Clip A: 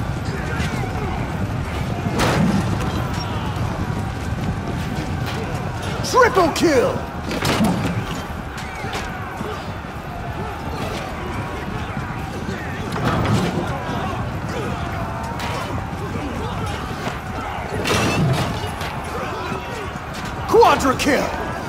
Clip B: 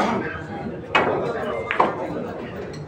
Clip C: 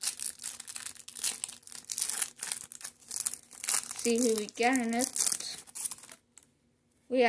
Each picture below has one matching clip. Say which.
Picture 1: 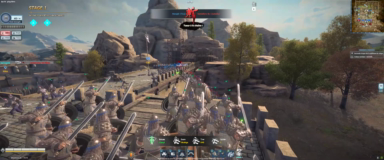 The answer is A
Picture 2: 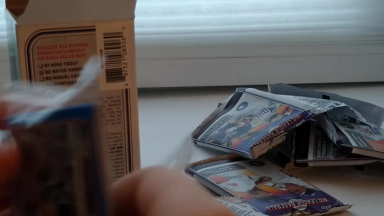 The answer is C